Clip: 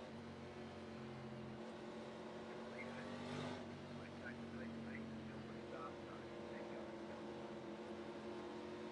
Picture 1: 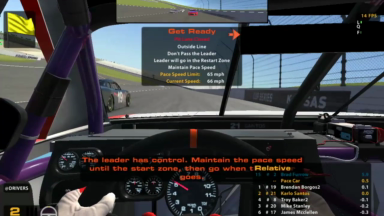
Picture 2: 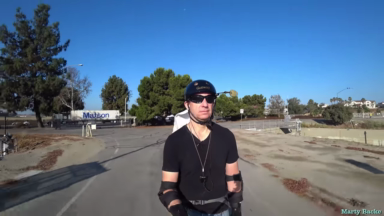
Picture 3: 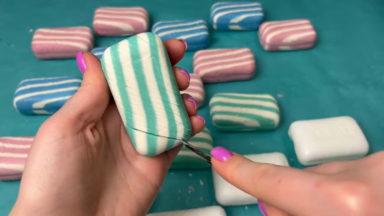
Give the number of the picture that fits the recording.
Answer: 1